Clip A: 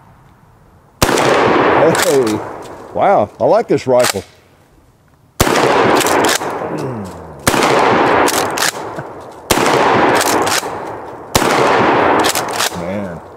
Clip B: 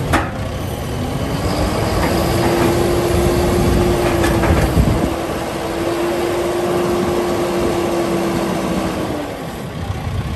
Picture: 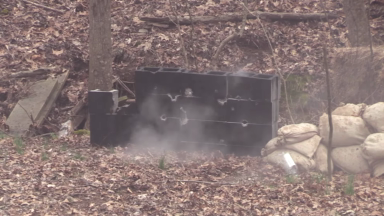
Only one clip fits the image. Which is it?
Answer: A